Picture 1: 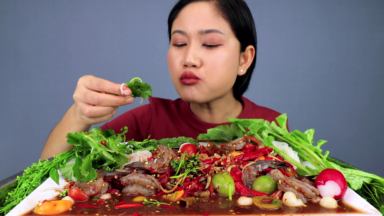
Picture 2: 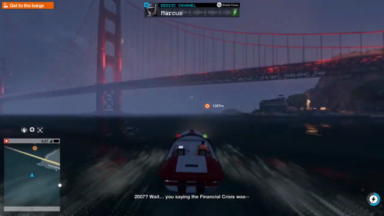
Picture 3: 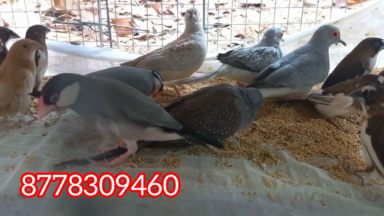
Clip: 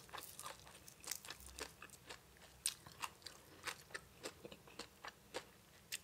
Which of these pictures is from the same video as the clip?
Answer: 1